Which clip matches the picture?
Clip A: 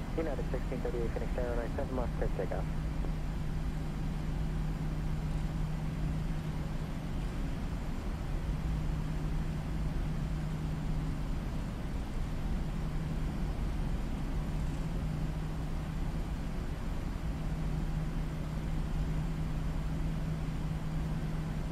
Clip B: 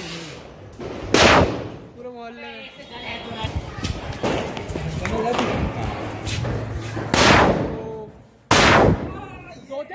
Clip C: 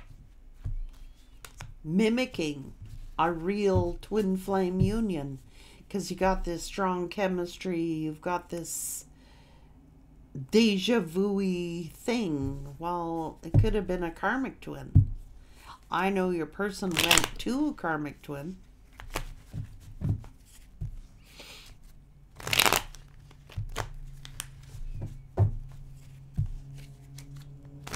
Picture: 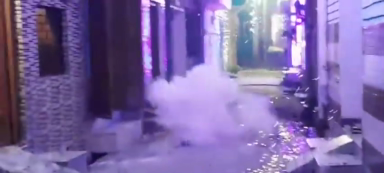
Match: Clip B